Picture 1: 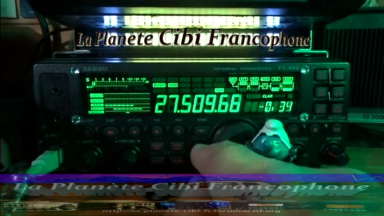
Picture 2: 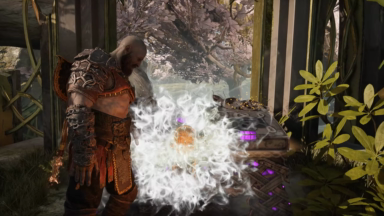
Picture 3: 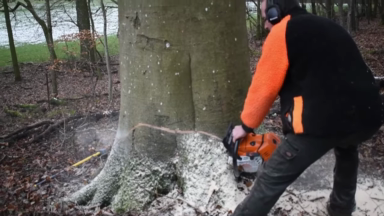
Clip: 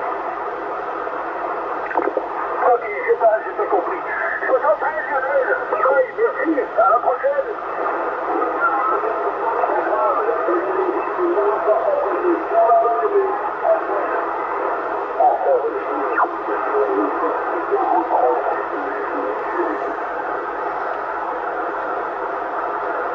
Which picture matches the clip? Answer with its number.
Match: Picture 1